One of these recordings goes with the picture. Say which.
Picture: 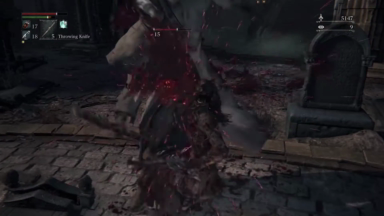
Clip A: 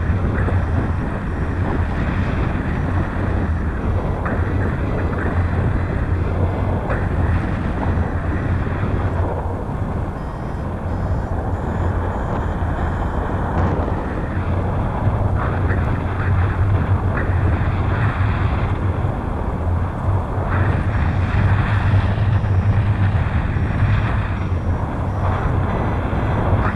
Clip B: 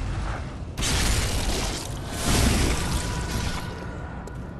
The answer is B